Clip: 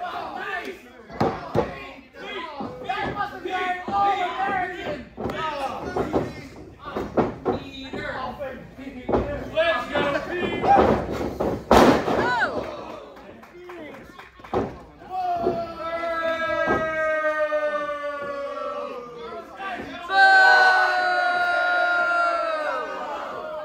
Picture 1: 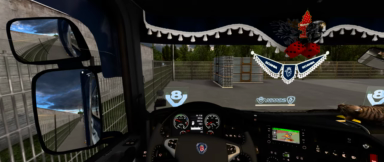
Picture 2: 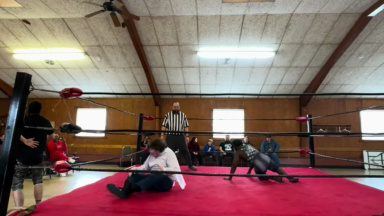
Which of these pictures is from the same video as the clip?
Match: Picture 2